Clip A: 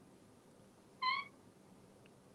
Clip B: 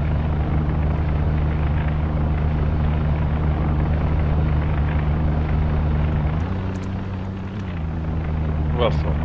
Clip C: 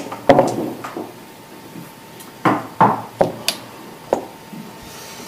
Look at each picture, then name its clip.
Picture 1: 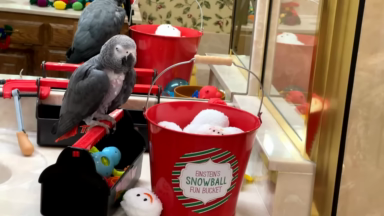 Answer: A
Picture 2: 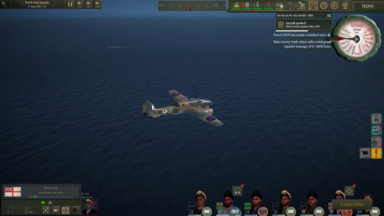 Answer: B